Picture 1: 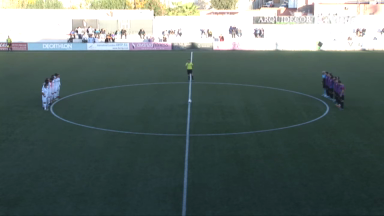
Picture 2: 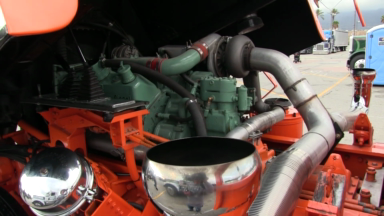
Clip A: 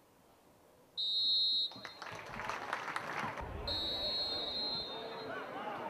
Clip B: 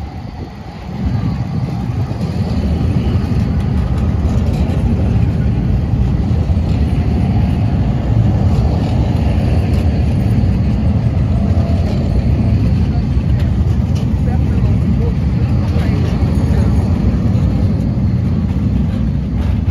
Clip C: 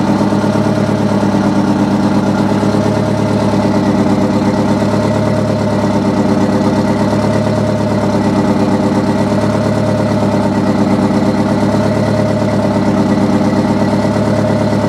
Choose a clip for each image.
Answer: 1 A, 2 C